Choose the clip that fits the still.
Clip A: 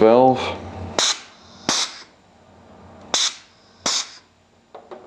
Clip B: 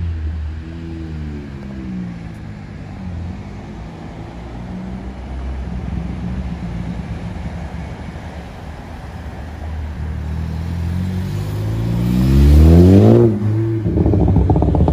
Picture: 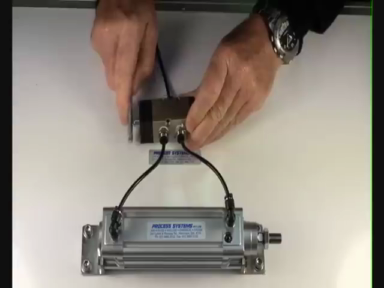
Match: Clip A